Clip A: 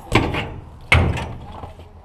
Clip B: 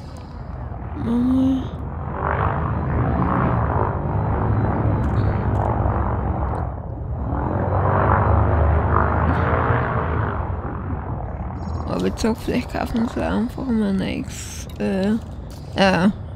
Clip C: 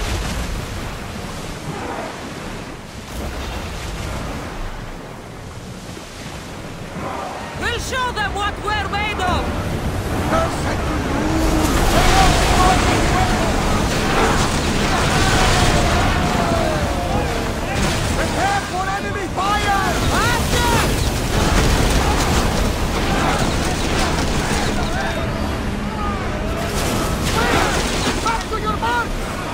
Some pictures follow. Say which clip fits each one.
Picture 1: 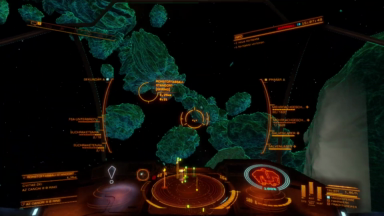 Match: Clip B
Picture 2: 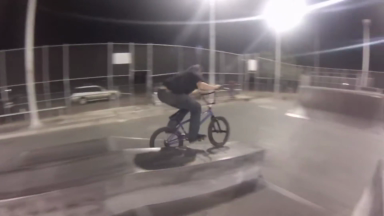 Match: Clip A